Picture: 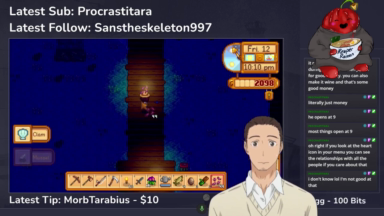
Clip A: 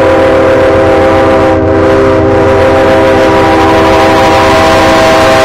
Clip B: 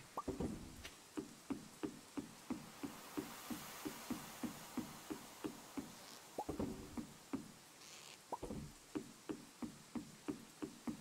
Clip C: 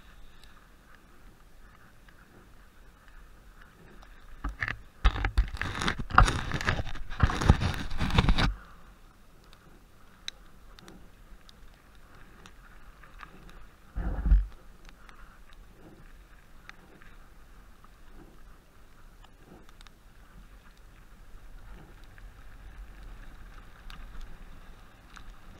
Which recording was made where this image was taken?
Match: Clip B